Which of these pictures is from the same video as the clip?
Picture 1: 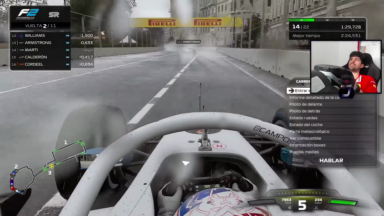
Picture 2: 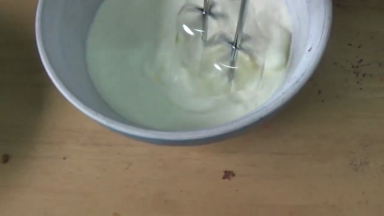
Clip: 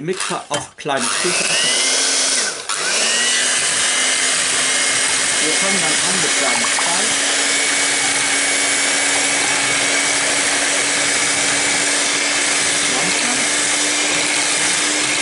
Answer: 2